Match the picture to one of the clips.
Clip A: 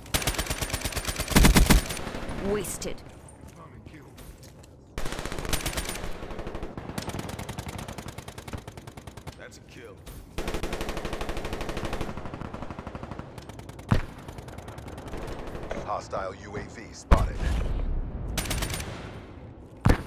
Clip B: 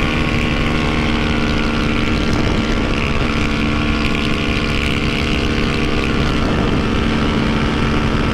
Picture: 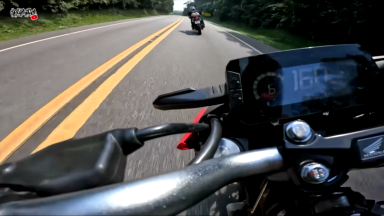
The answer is B